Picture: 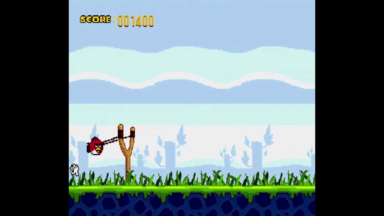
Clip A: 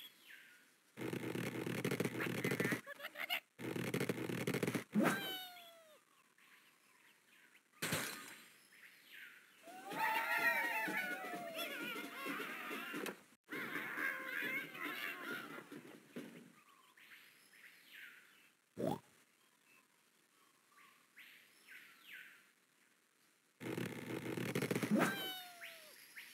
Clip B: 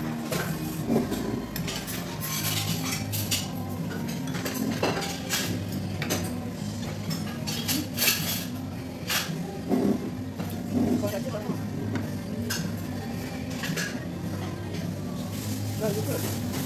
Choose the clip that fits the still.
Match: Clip A